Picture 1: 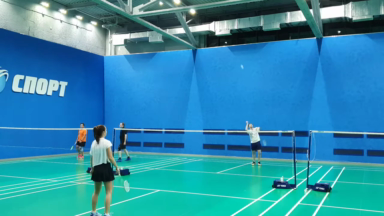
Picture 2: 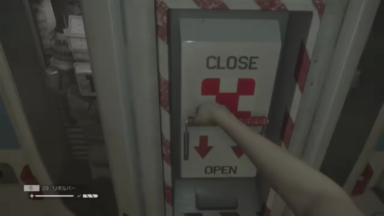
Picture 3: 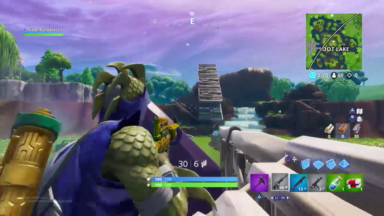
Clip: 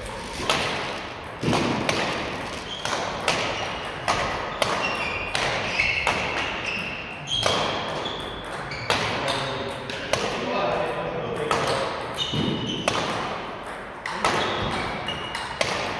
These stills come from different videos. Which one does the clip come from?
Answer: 1